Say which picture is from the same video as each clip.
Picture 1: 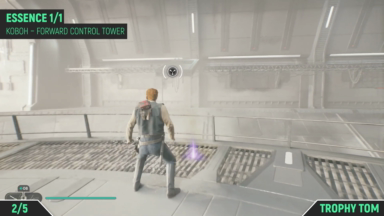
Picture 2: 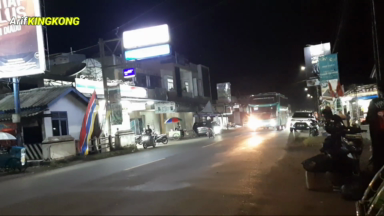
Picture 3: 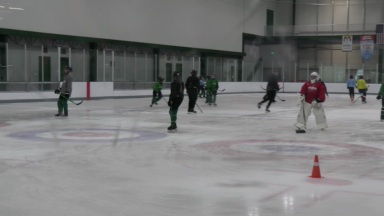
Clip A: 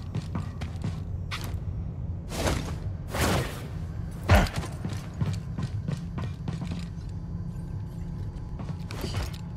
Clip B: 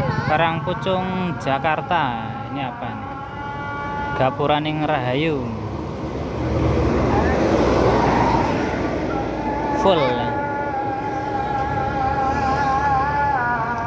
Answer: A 1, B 2